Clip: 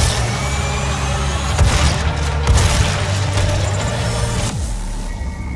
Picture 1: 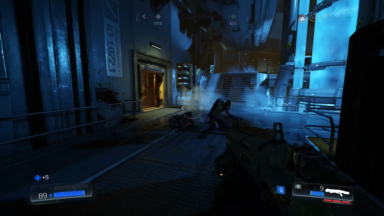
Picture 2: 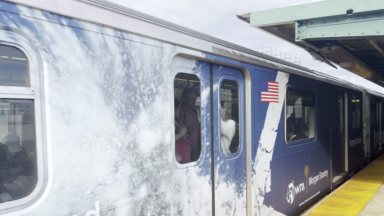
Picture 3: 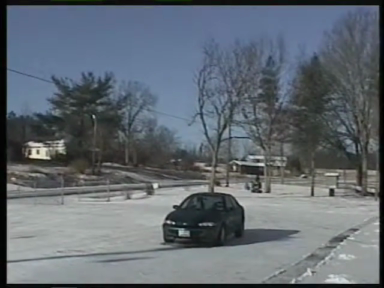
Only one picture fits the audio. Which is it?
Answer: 1